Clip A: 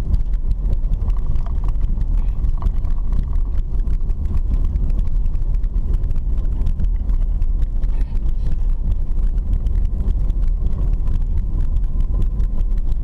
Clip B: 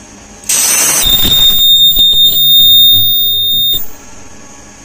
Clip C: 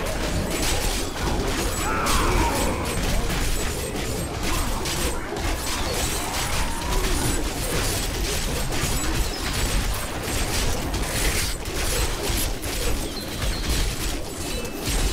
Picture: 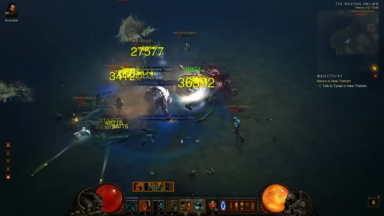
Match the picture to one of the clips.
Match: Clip C